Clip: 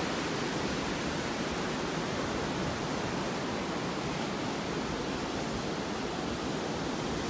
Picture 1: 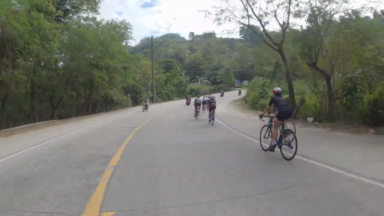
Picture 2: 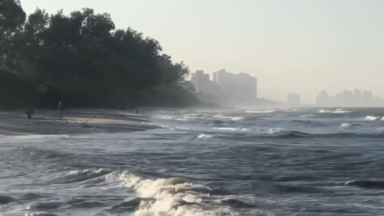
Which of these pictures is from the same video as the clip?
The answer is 2